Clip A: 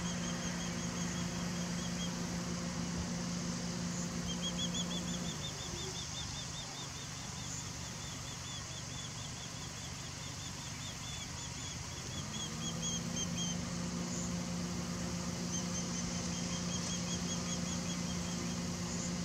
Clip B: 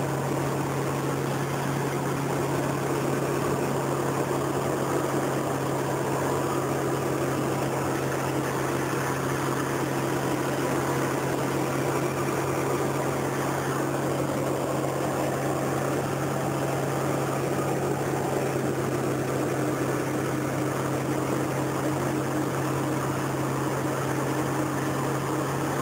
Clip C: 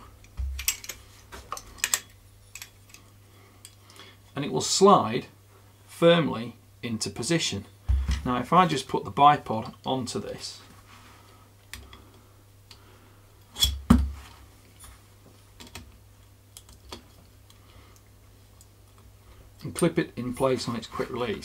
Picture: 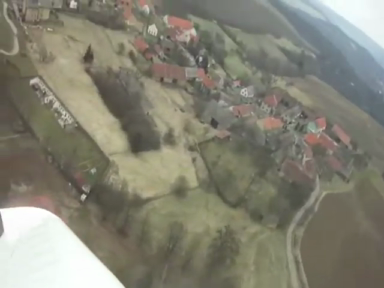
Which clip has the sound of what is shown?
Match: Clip B